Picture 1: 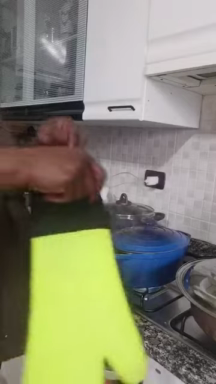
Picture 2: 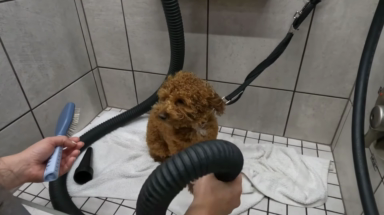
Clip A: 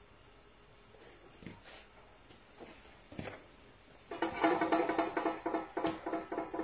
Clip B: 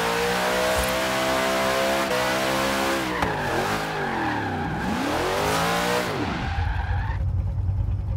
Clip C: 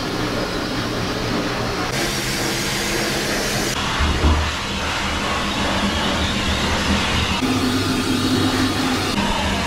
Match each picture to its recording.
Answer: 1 A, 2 C